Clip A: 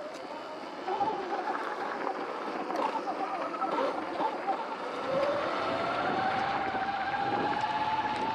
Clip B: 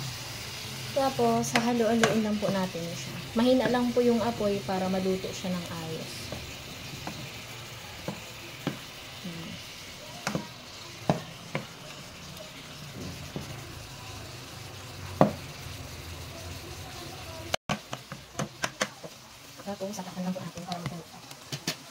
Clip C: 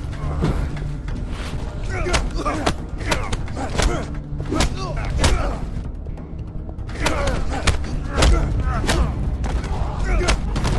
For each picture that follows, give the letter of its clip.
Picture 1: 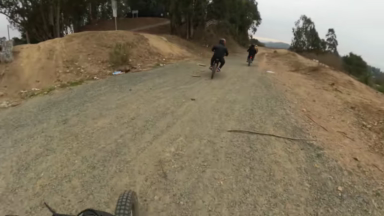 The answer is A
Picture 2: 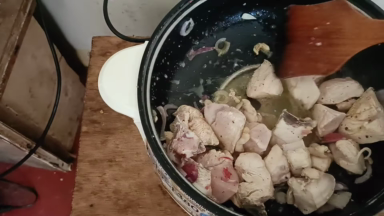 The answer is B